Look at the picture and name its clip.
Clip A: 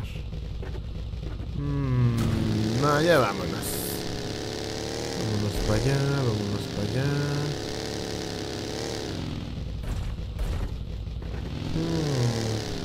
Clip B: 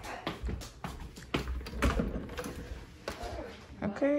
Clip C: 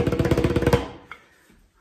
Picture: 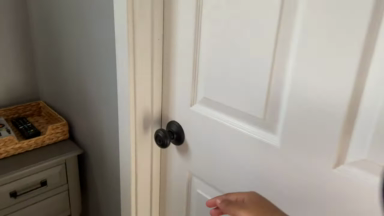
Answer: B